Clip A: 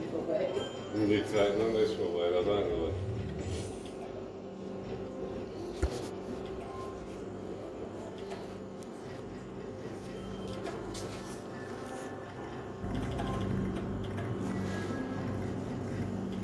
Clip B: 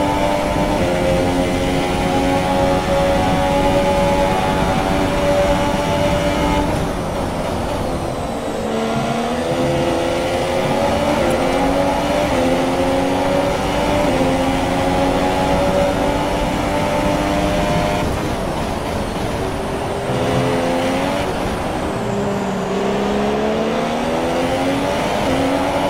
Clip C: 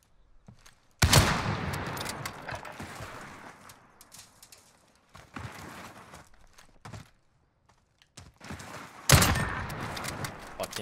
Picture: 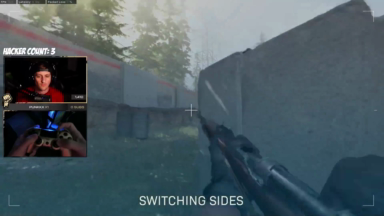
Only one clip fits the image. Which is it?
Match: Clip C